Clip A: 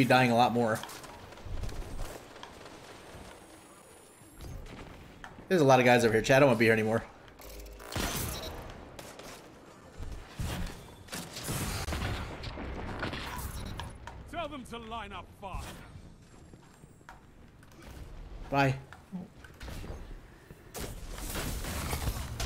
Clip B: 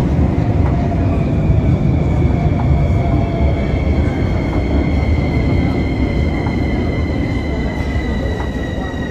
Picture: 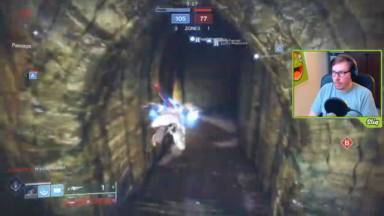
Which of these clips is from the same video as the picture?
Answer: A